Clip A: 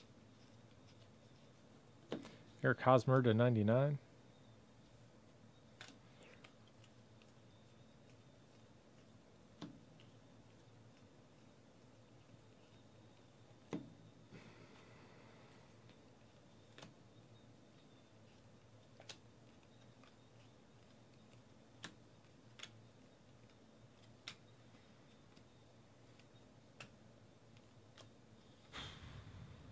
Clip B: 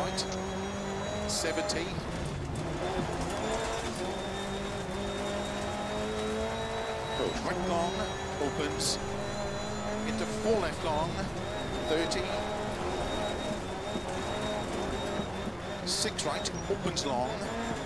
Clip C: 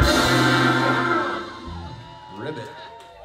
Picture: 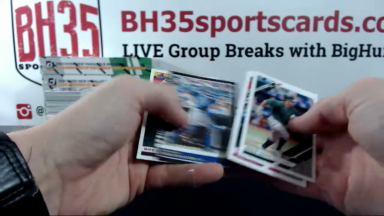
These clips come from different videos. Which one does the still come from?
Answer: A